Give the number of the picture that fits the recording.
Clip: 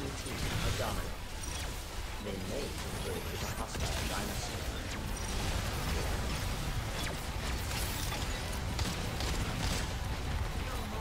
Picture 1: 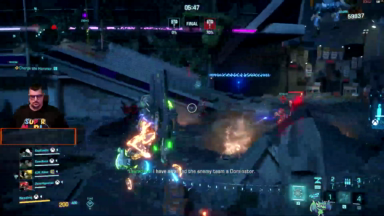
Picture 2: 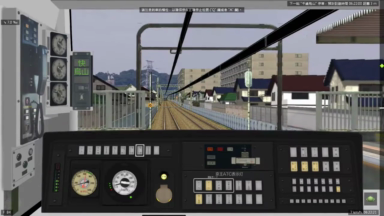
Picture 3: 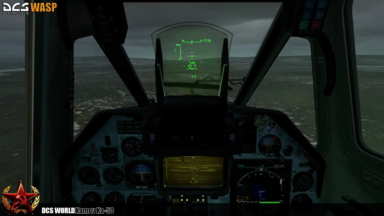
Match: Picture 1